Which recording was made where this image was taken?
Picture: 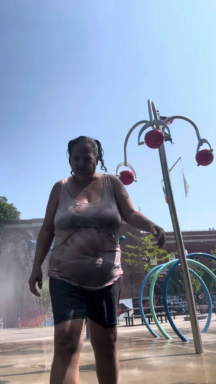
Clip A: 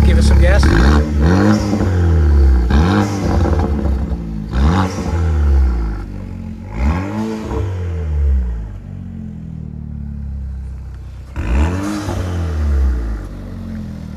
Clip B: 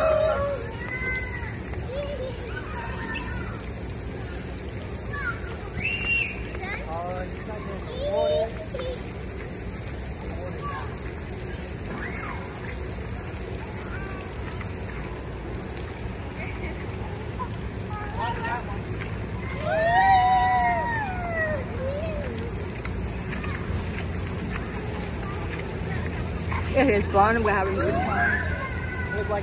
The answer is B